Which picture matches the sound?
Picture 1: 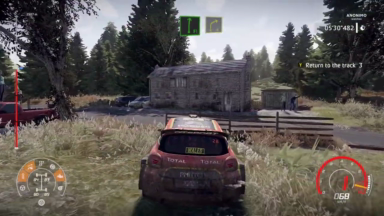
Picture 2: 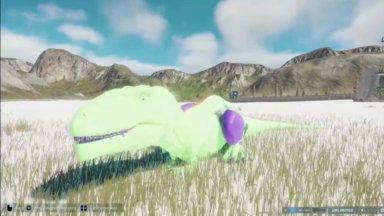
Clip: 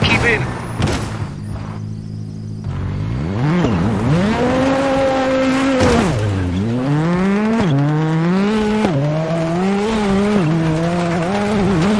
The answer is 1